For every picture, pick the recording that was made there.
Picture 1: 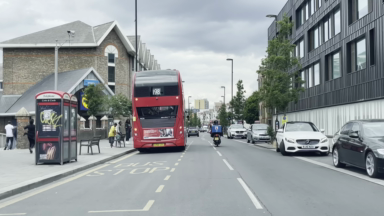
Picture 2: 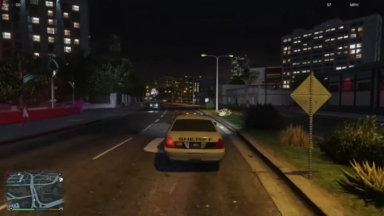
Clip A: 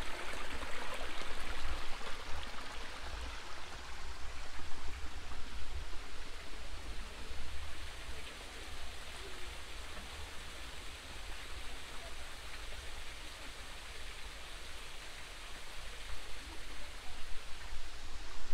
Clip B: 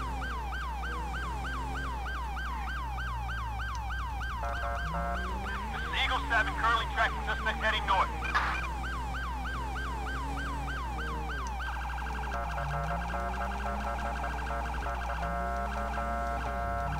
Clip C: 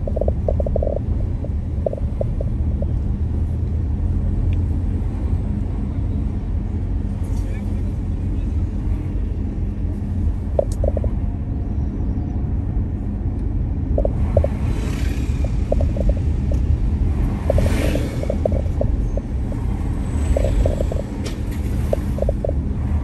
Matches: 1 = C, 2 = B